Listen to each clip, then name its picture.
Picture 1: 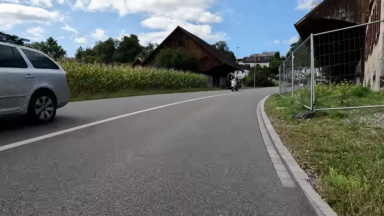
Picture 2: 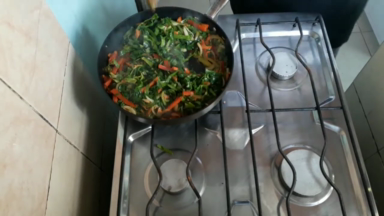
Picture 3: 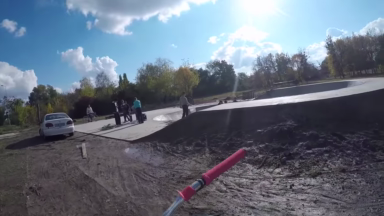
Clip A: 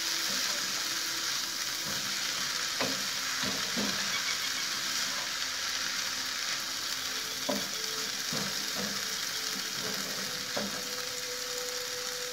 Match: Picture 2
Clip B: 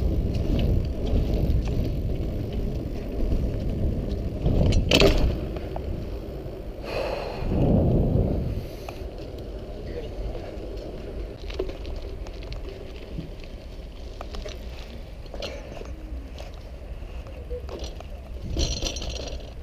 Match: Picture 3